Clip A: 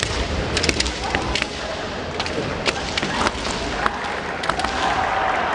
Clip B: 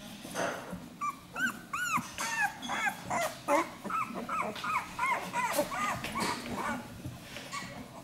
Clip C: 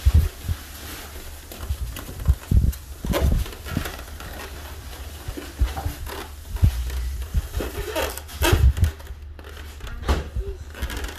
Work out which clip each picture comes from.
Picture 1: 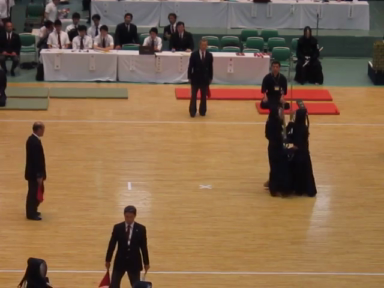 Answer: A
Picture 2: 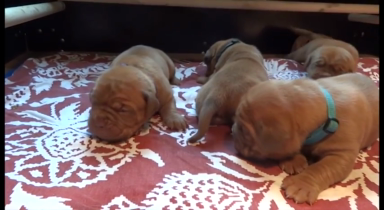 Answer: B